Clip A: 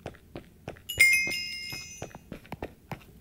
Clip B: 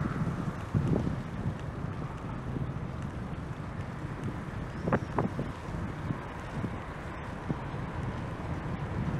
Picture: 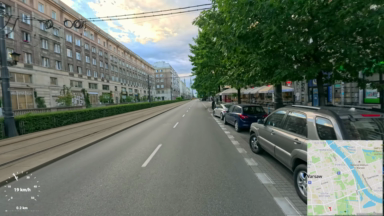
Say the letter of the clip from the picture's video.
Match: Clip B